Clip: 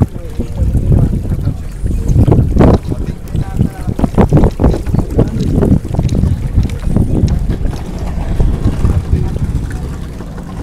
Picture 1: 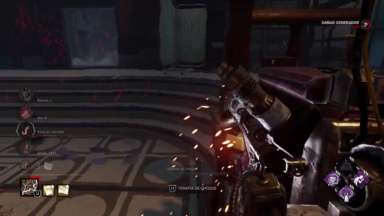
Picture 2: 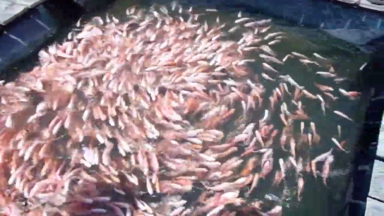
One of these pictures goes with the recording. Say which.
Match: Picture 2